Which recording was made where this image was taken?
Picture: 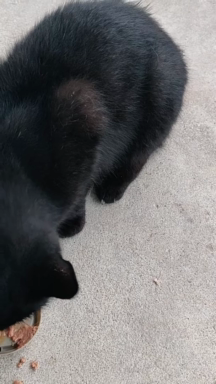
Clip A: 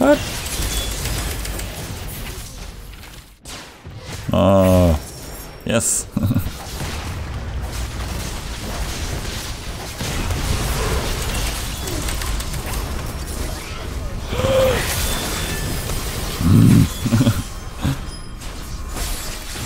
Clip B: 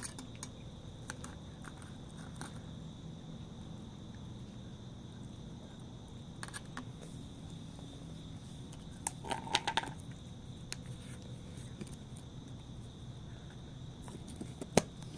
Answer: B